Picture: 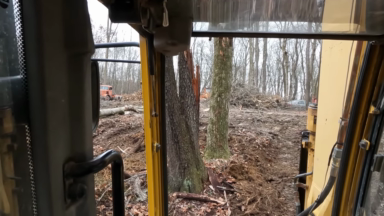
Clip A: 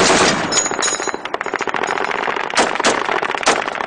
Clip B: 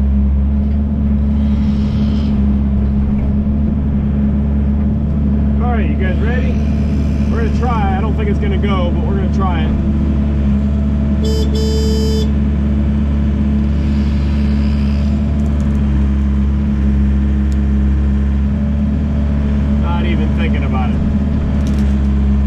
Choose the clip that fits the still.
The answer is B